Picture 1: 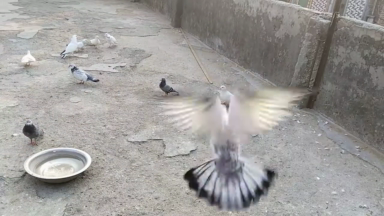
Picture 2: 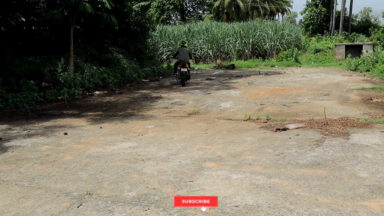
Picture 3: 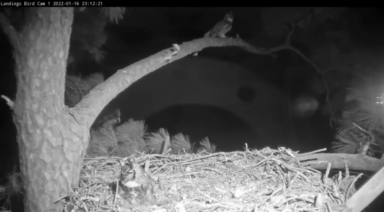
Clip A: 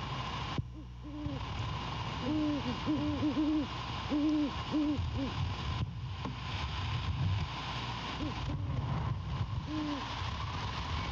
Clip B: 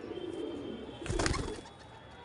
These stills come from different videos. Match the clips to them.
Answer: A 3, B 1